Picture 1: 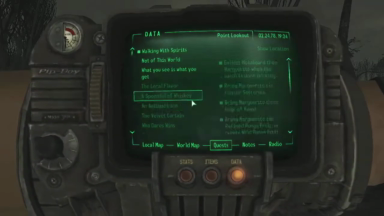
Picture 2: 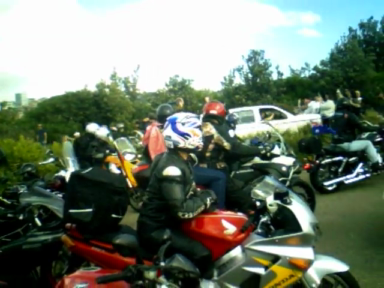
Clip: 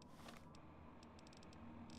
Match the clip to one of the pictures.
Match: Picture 1